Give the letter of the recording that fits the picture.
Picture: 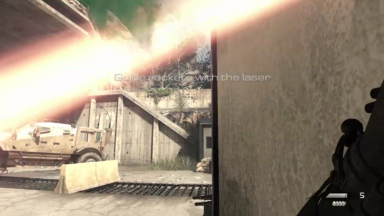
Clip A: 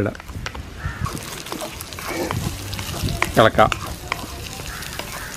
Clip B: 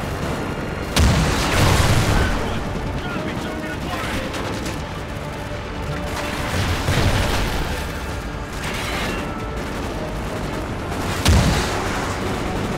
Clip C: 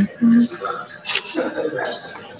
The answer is B